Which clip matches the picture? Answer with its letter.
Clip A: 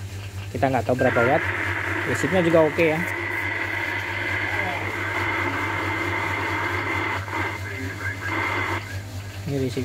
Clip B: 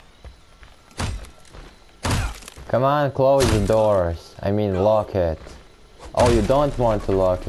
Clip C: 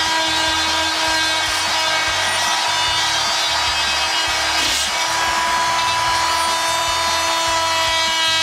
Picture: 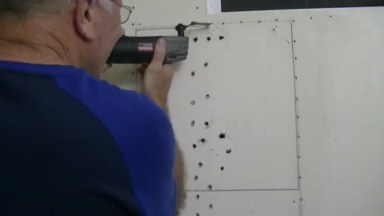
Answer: C